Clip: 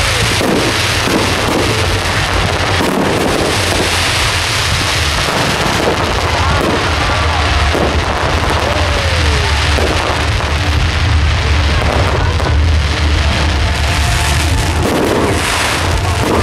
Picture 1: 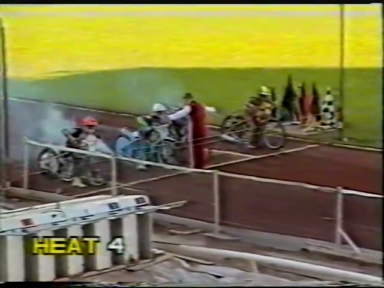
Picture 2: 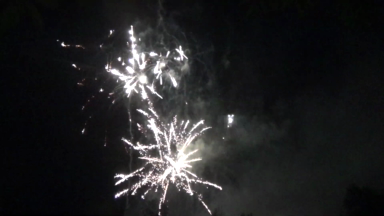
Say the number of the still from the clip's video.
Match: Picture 2